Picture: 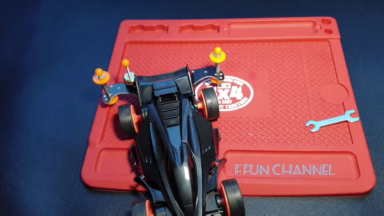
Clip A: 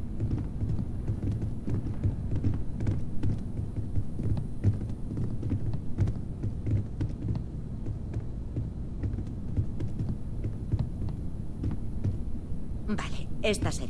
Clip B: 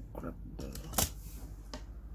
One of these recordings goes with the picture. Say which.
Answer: B